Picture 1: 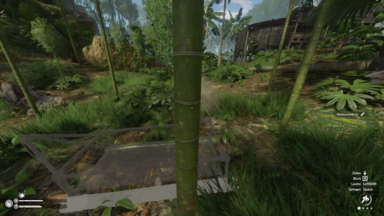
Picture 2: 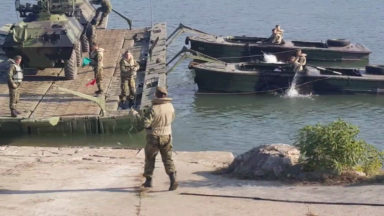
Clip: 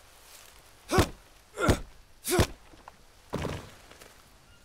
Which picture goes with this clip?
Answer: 1